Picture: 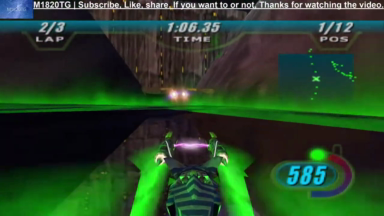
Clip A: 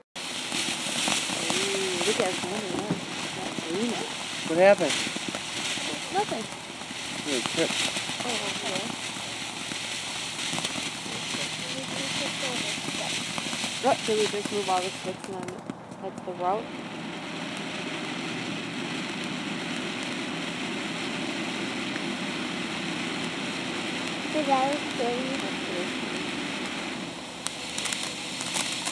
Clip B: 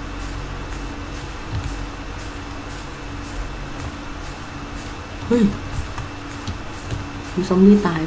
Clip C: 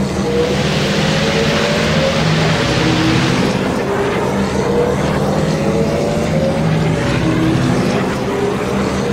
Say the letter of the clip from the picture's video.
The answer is C